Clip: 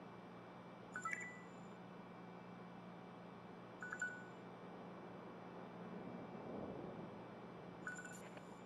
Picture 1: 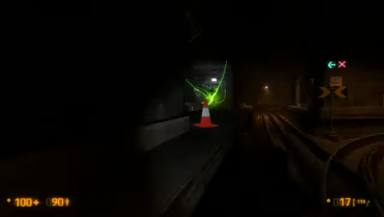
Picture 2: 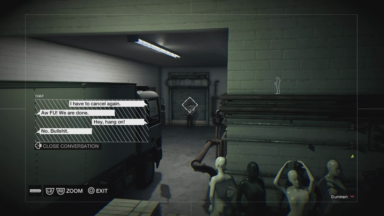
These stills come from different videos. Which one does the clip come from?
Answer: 2